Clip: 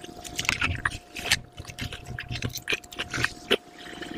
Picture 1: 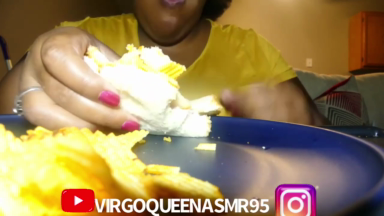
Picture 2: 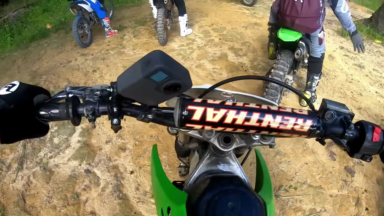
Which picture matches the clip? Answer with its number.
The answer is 1